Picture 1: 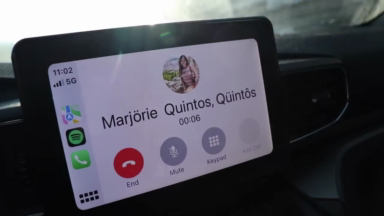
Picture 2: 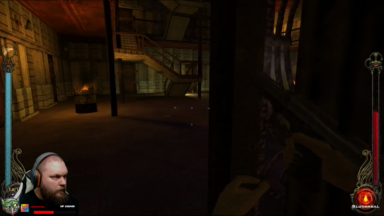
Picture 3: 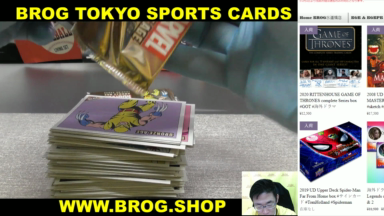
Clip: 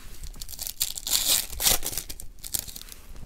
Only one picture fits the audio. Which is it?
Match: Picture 3